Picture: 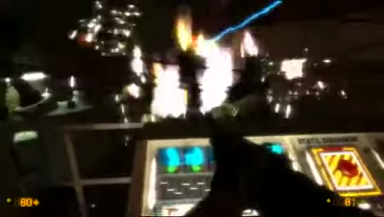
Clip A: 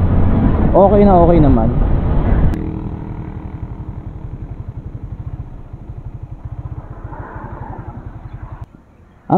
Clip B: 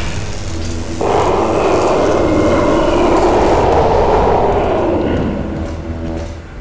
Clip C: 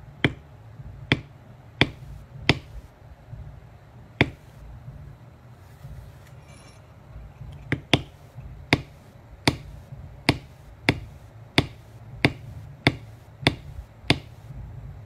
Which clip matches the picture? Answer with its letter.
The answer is B